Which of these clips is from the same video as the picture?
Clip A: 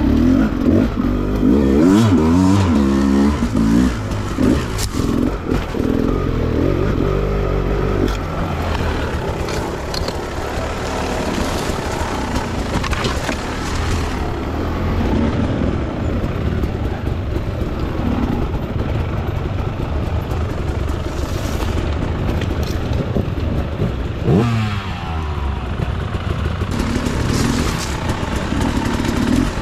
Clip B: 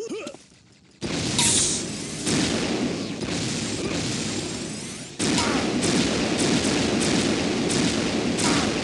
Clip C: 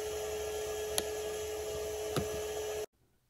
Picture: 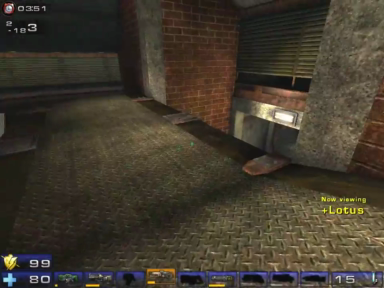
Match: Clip B